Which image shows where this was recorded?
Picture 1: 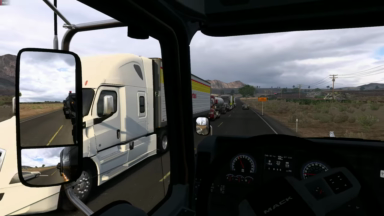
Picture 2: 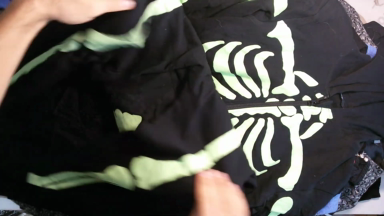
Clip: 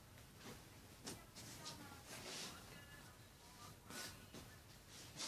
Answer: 2